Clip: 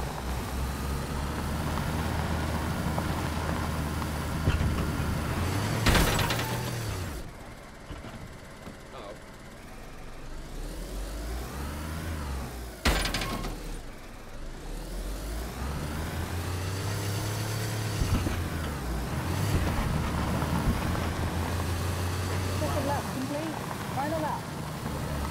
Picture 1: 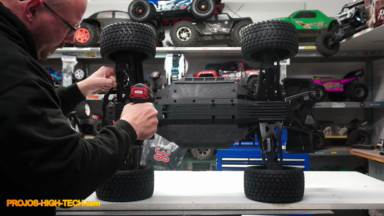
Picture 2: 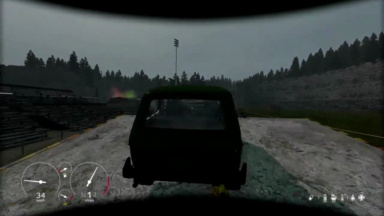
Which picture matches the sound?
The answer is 2